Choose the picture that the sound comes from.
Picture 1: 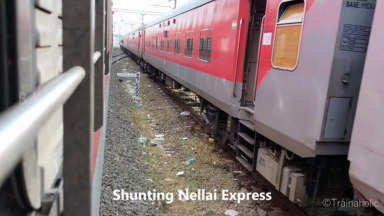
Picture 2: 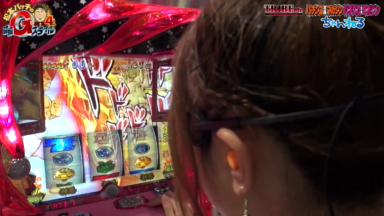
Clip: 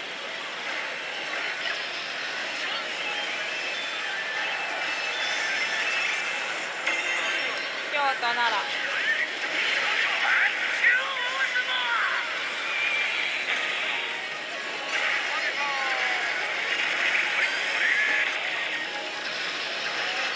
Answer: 2